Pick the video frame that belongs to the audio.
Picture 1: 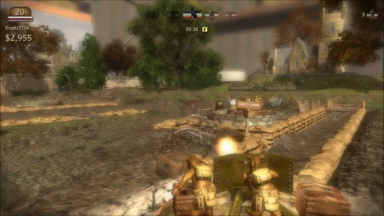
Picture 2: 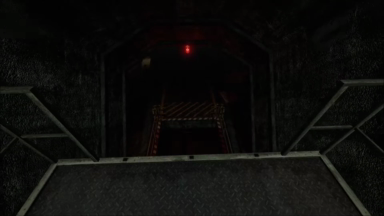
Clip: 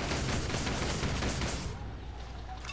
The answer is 1